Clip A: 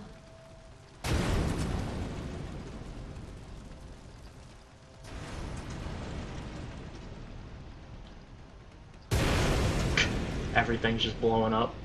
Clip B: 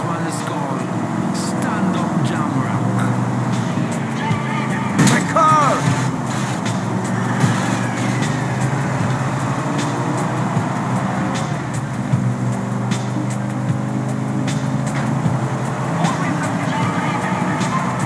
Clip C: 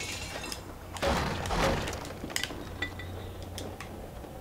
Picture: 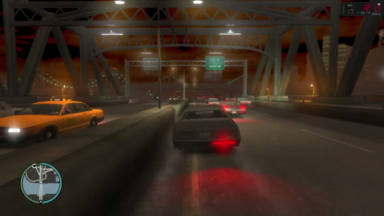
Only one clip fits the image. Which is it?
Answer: B